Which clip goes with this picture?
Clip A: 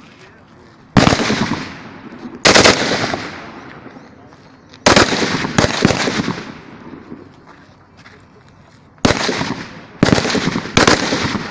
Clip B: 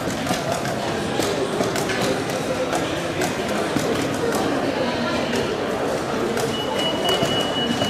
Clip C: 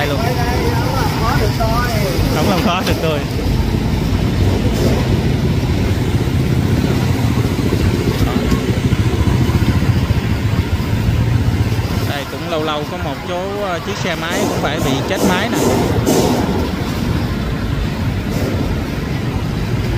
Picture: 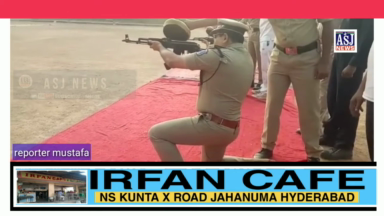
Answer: A